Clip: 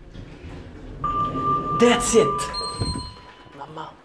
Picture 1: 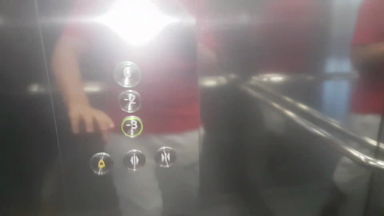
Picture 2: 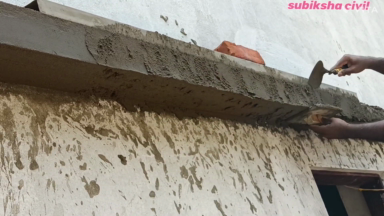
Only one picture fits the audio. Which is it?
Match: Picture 1